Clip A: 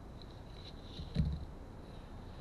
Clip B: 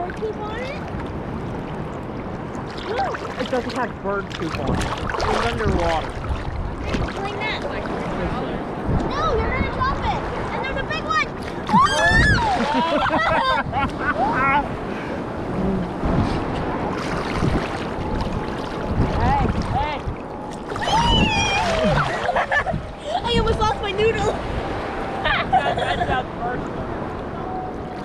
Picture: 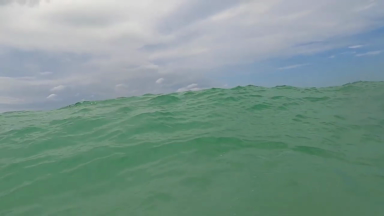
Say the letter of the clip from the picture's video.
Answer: B